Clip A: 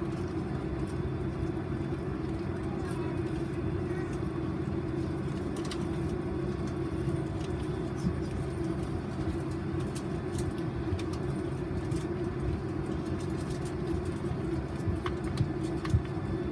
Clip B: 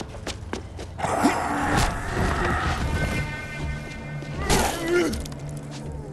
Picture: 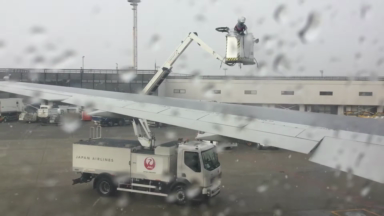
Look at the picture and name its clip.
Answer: A